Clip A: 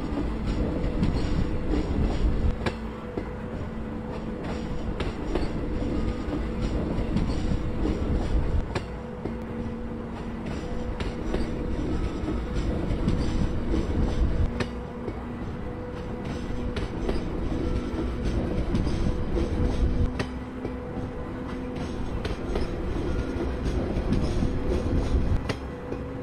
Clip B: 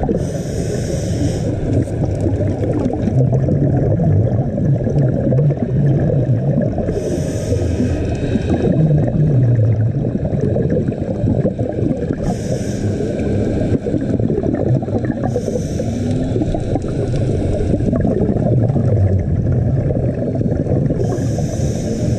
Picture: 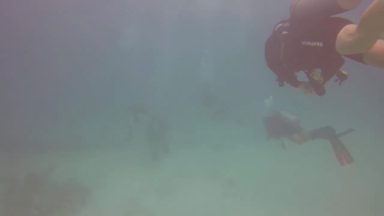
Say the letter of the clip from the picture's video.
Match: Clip B